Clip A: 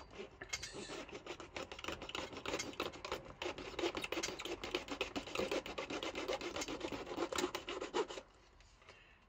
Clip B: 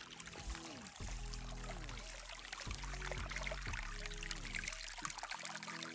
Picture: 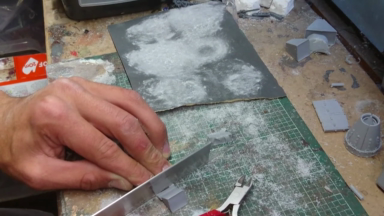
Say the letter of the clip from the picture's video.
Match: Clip A